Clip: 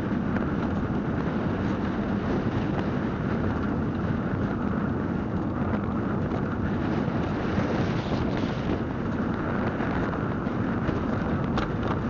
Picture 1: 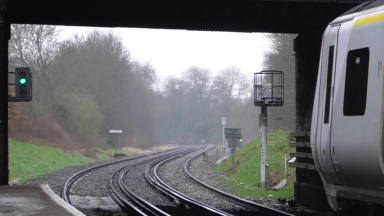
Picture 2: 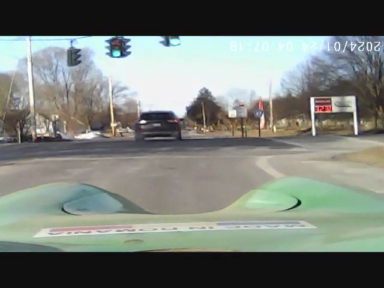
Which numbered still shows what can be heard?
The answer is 2